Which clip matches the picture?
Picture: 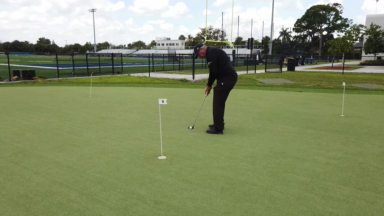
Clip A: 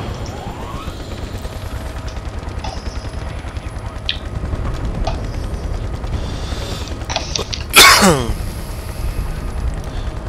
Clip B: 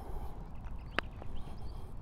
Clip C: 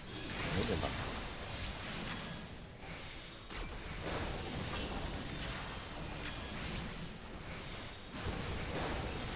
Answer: B